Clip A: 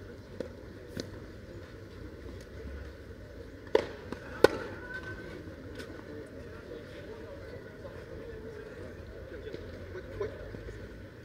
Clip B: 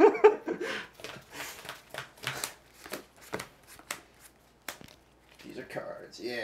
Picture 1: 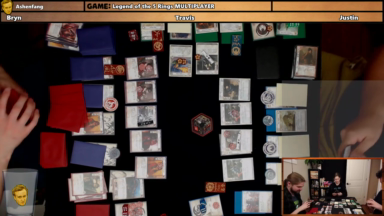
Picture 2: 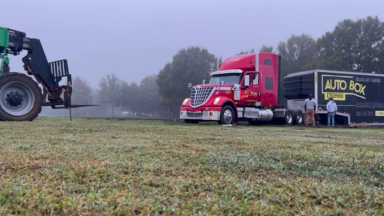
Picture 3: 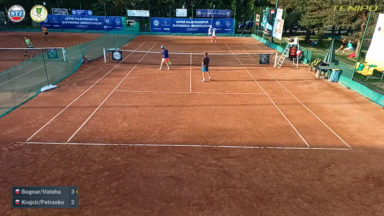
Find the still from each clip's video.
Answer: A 3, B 1